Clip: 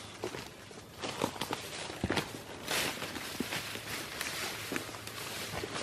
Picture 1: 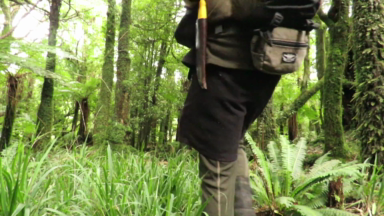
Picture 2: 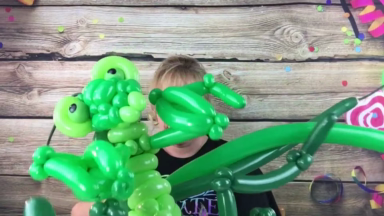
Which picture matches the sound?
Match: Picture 1